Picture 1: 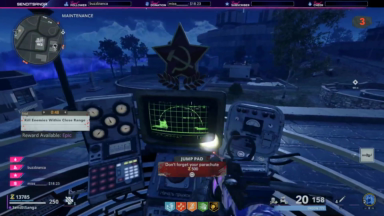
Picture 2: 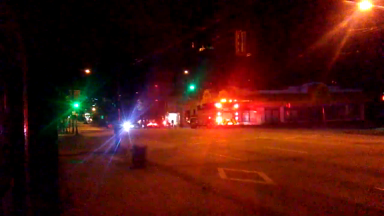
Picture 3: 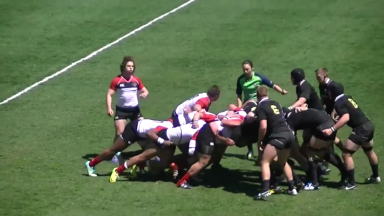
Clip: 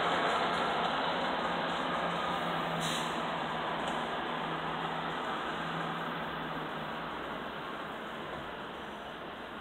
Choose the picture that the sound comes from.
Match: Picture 2